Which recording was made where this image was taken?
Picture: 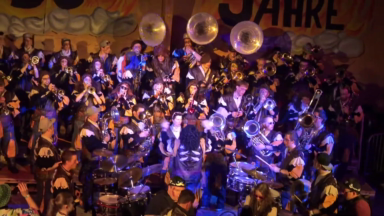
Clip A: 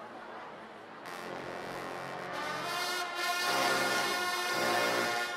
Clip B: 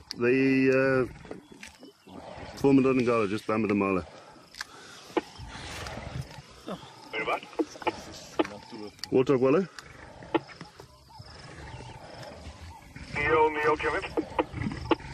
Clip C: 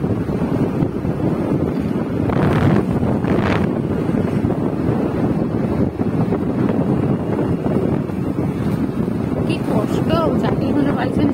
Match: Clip A